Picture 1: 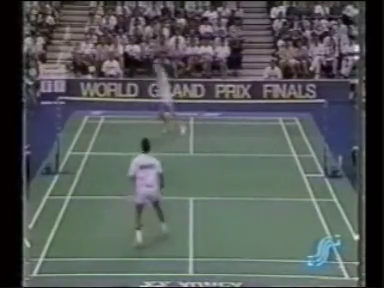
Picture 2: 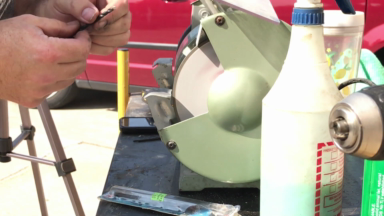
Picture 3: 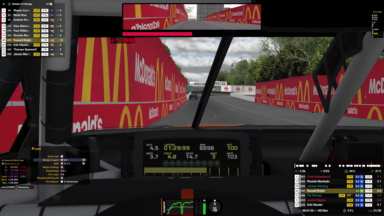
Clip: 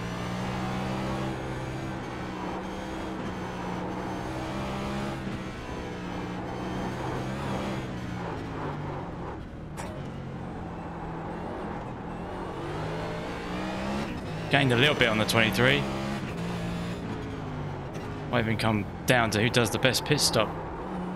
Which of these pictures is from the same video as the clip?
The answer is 3